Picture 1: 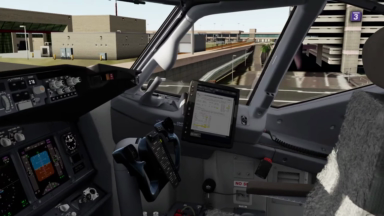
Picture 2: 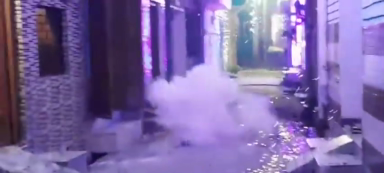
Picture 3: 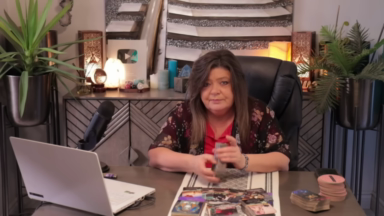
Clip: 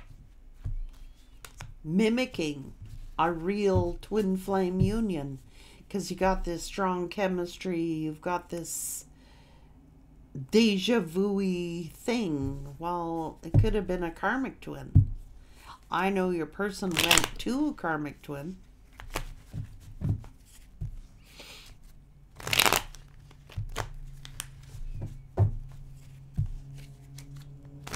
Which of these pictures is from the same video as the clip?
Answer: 3